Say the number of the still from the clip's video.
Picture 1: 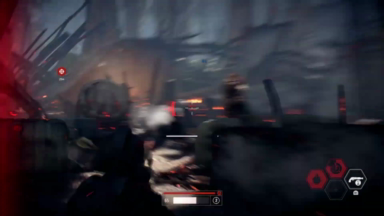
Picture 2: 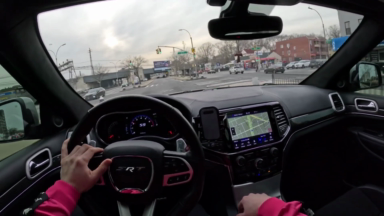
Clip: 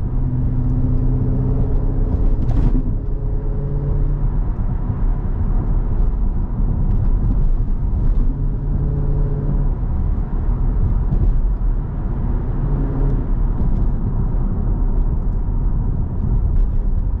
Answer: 2